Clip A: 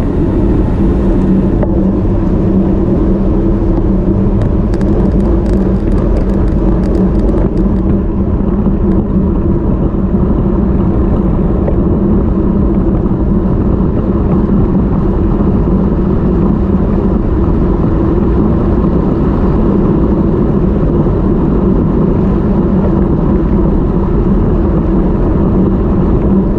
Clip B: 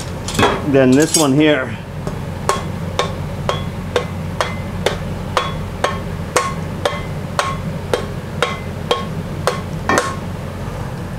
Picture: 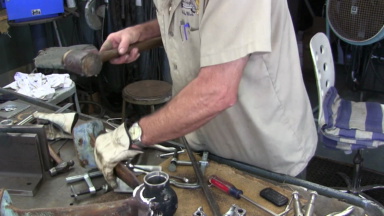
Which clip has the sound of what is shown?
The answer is B